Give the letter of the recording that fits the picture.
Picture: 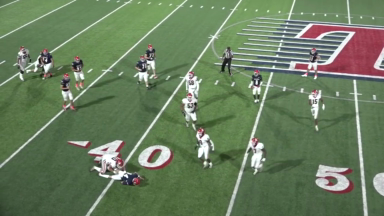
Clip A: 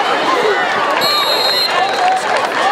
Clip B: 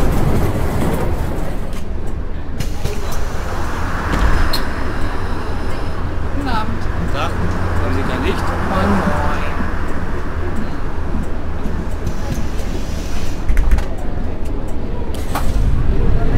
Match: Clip A